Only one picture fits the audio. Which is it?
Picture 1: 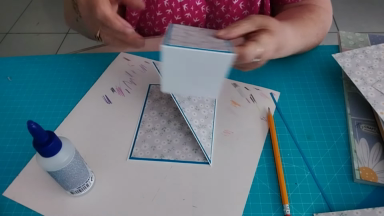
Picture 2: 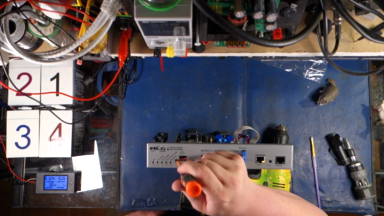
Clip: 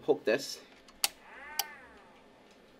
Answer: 2